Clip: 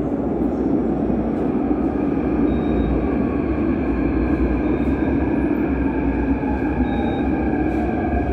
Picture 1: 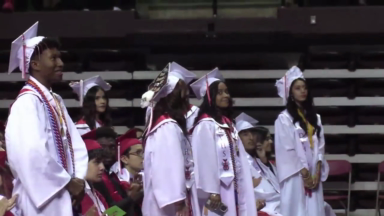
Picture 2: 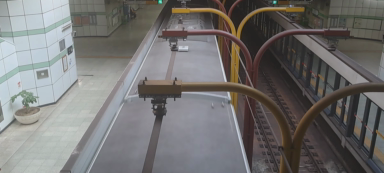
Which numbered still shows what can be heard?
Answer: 2